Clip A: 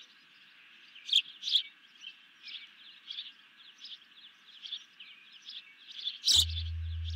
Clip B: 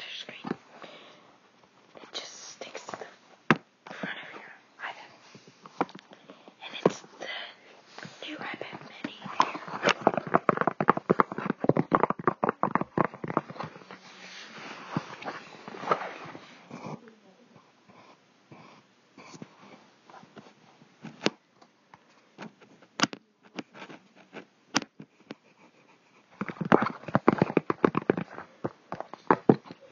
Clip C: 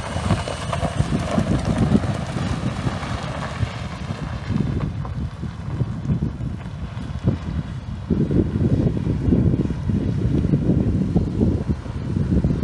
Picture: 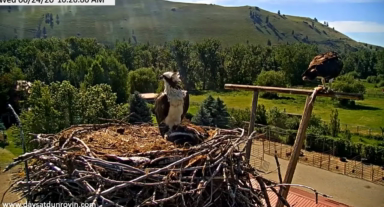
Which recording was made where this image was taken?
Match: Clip A